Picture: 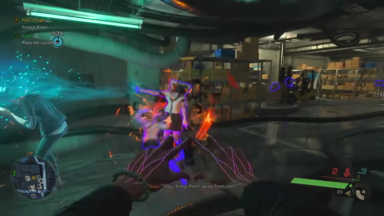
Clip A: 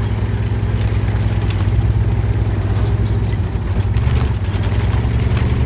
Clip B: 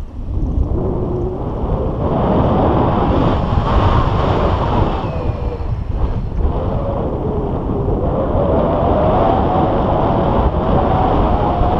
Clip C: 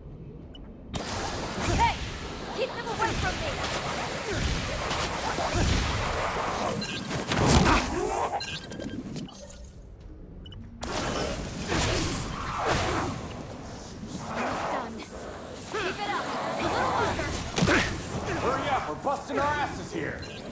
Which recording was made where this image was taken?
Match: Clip C